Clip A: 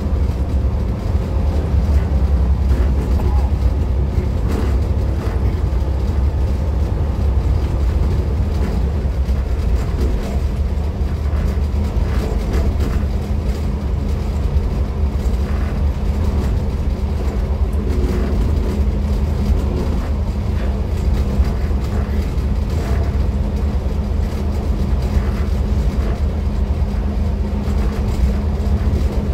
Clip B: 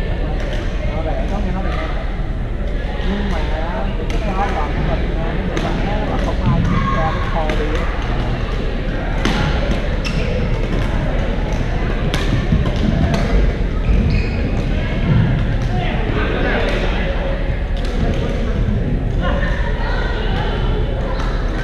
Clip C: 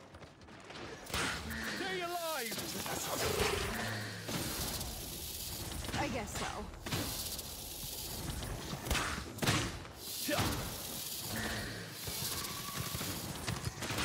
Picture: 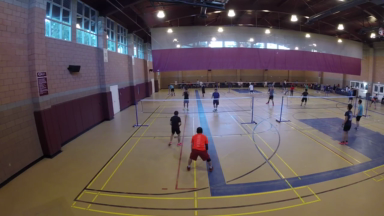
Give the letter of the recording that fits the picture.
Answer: B